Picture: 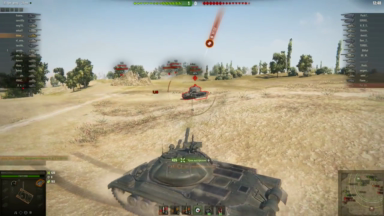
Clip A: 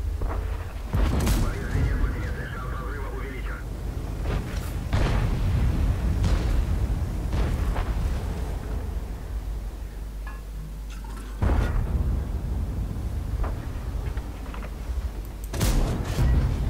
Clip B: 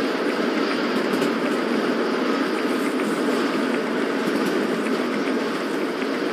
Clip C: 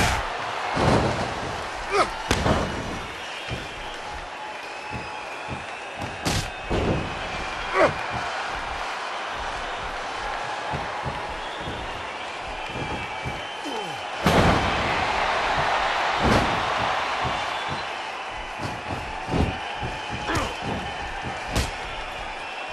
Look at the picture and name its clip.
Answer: A